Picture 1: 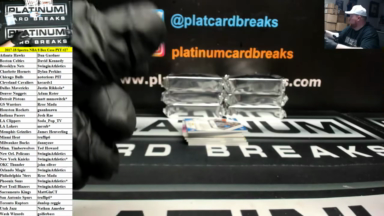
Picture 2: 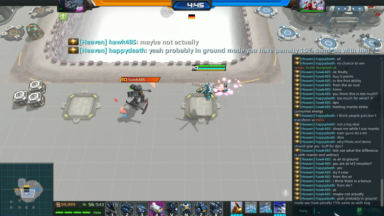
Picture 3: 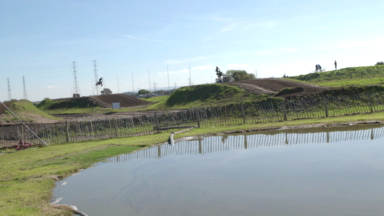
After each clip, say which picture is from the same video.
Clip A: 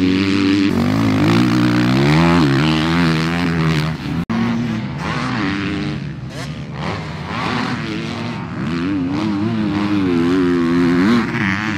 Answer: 3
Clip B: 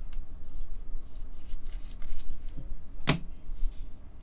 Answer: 1